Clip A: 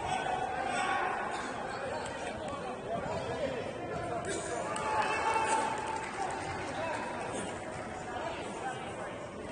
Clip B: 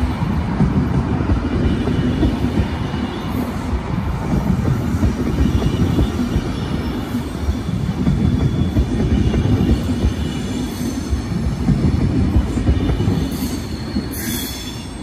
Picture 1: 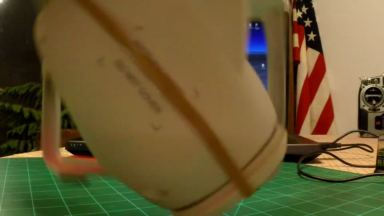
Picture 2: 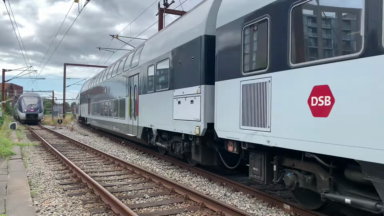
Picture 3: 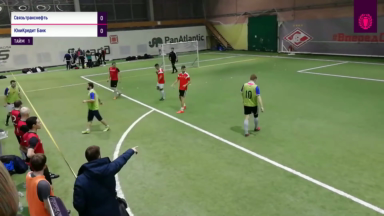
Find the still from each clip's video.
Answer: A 3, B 2